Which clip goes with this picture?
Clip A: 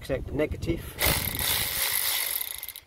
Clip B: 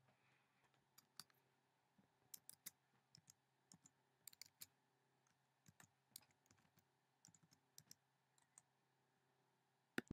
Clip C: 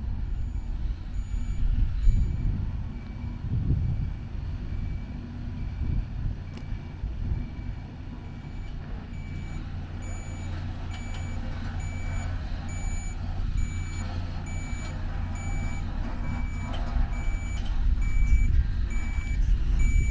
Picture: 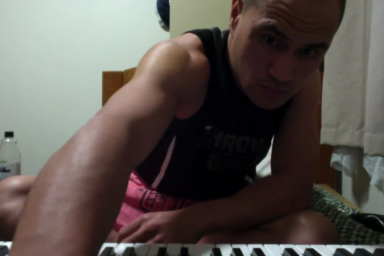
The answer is B